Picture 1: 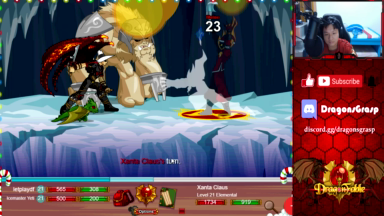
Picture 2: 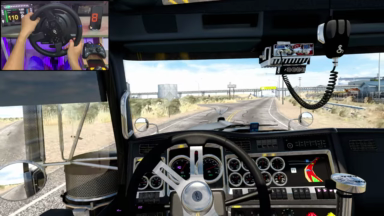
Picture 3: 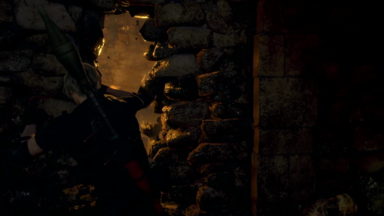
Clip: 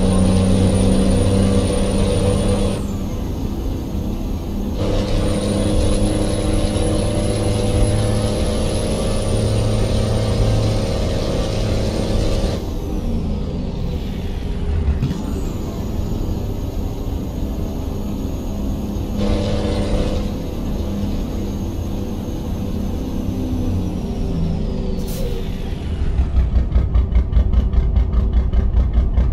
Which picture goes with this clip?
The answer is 2